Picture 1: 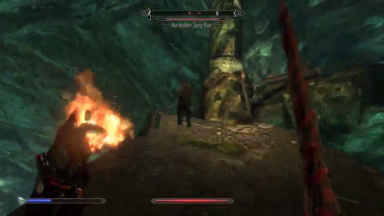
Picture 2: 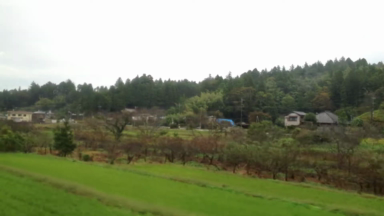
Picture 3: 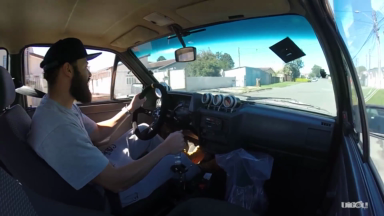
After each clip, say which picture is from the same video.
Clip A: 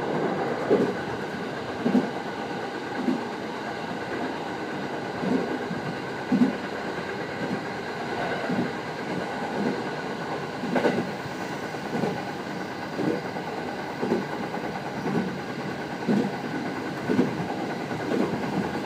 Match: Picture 2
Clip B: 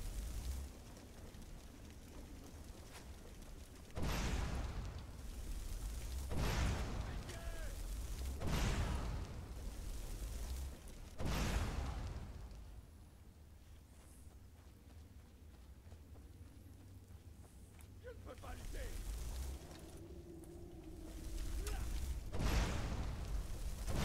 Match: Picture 1